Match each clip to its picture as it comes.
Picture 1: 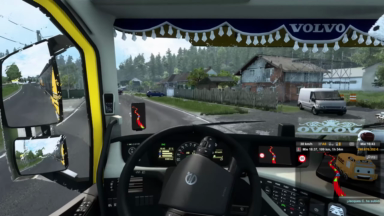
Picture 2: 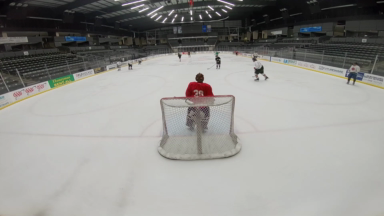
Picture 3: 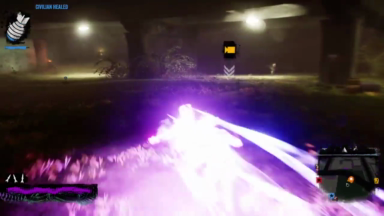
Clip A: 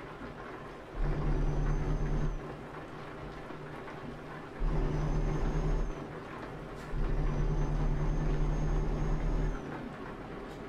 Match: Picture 1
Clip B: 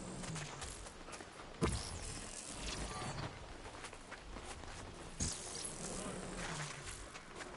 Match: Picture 3